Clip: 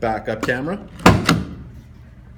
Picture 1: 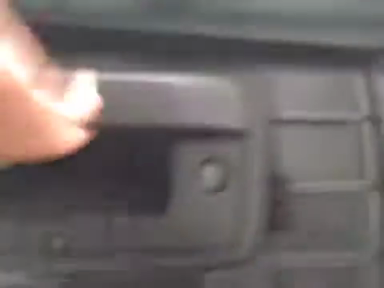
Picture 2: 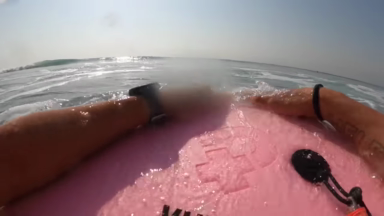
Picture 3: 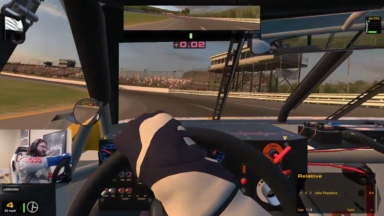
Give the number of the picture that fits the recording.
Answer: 1